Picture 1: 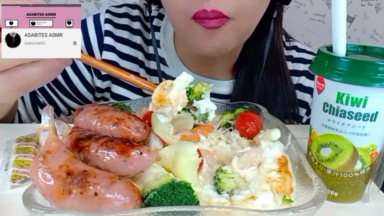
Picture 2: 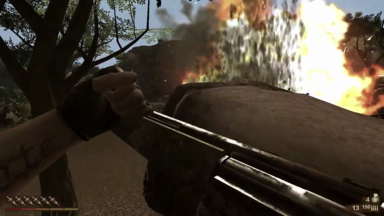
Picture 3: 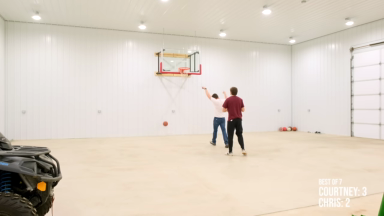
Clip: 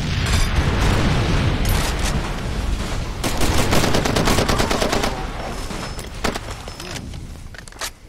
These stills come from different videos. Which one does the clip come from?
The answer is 2